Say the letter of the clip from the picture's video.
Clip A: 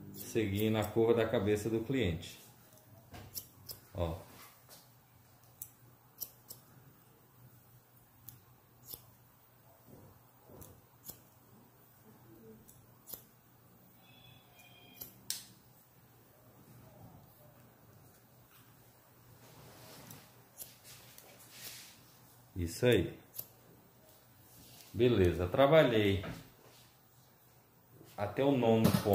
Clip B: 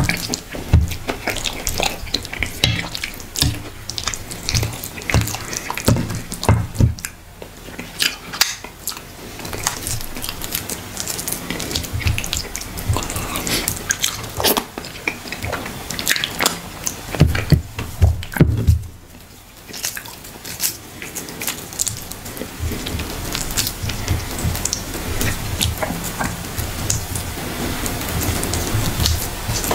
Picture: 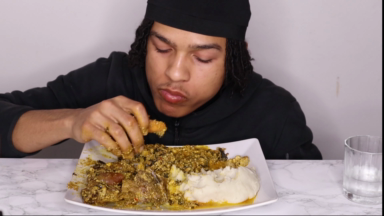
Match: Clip B